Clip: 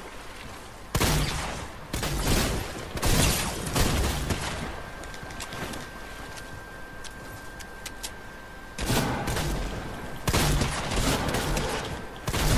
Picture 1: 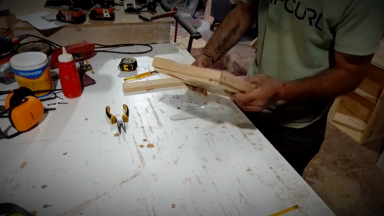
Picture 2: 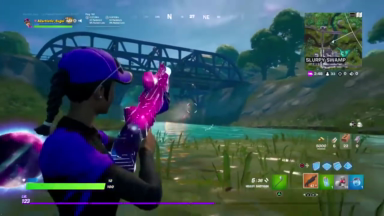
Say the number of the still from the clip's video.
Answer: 2